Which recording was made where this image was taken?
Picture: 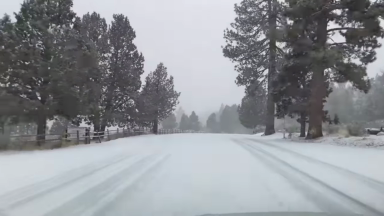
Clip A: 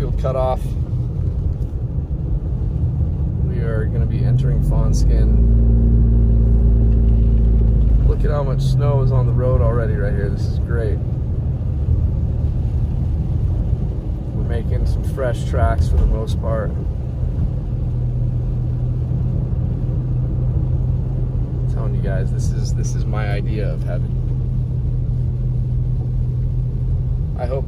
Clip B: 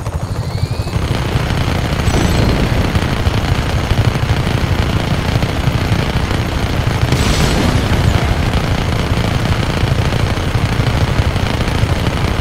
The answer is A